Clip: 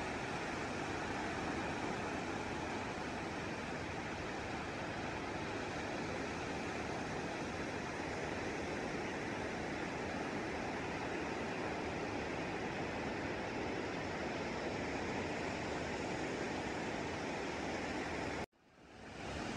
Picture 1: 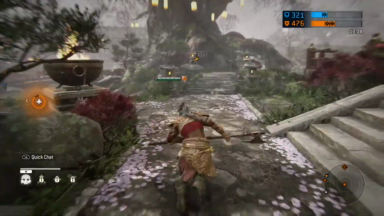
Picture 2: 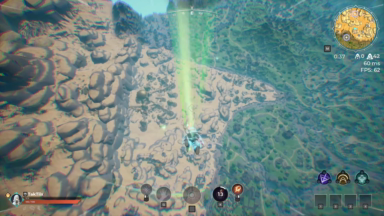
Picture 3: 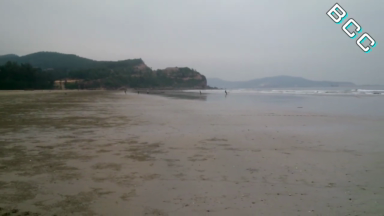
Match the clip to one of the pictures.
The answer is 3